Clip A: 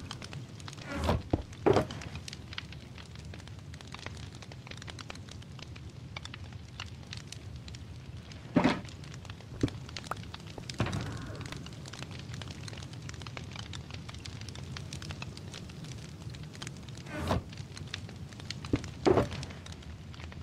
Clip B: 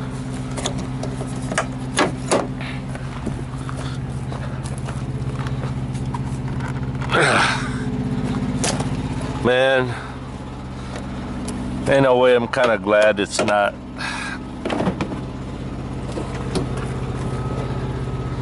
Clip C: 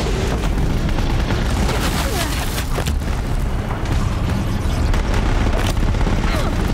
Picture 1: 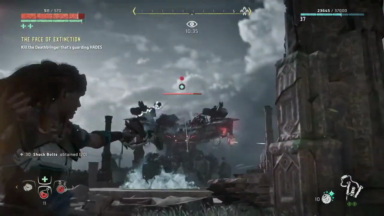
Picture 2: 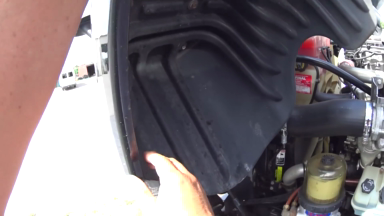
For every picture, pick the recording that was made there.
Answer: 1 C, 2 B